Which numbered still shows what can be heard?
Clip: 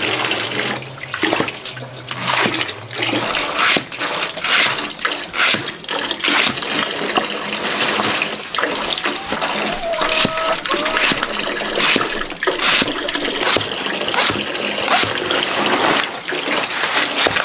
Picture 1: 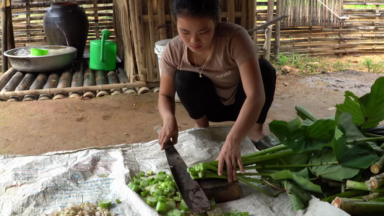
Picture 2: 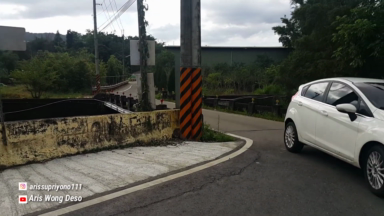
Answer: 1